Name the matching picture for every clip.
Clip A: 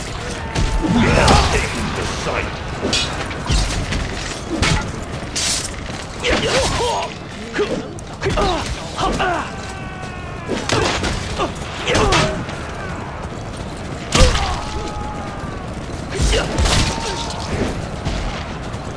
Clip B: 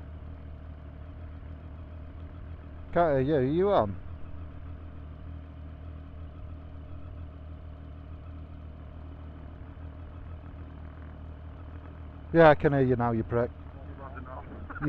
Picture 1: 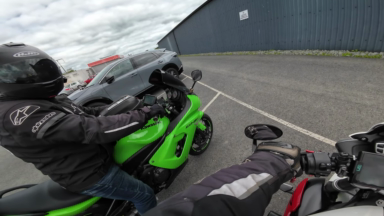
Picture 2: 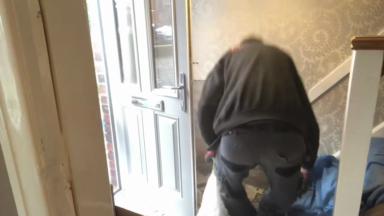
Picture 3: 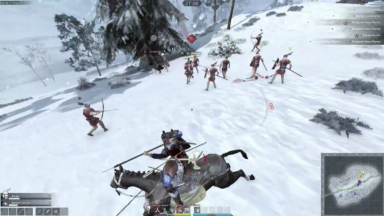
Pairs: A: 3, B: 1